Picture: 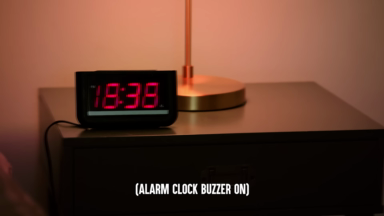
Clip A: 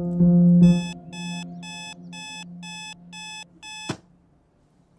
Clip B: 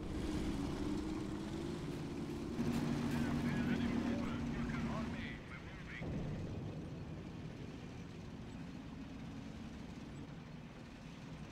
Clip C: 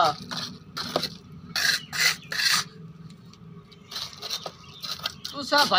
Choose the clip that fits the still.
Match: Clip A